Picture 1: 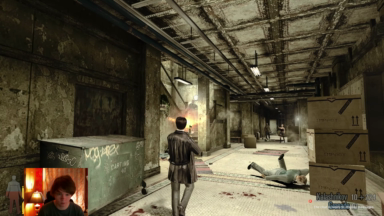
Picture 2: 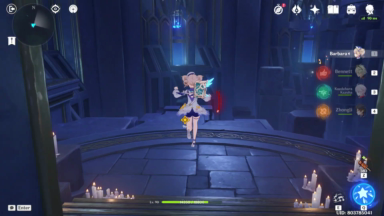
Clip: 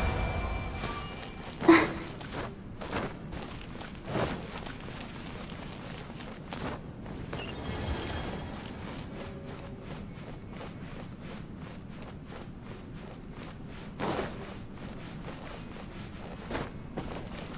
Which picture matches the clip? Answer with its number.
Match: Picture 2